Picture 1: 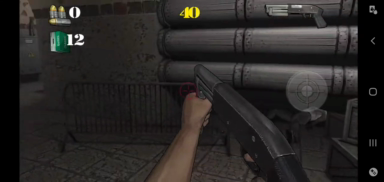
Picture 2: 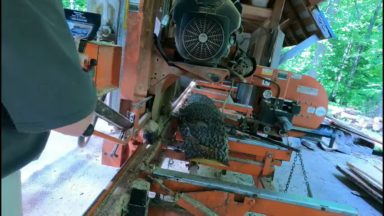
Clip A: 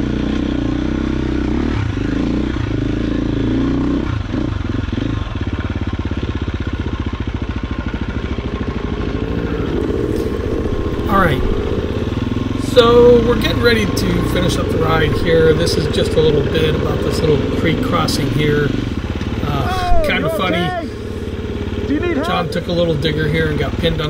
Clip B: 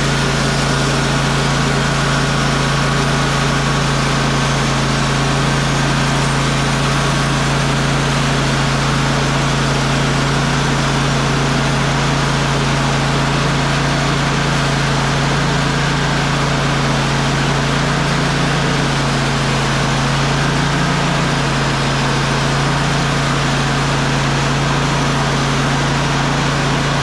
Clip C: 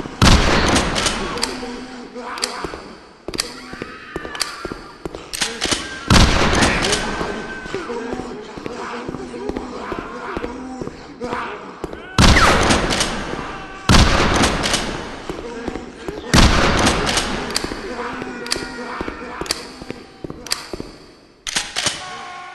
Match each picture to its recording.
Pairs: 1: C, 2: B